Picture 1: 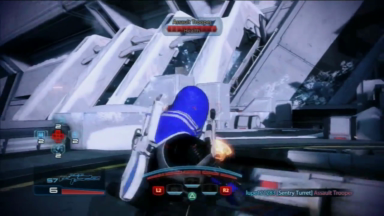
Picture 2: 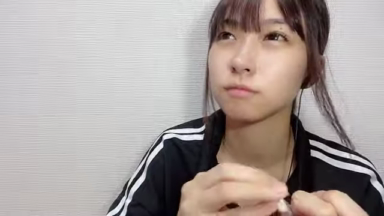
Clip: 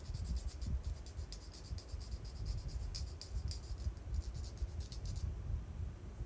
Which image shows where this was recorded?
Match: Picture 2